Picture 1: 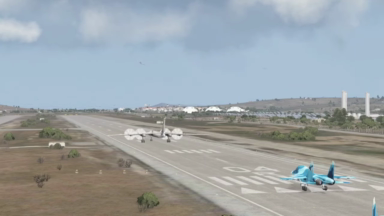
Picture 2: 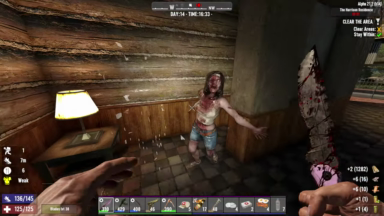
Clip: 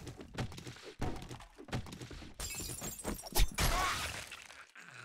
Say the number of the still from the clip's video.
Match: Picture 2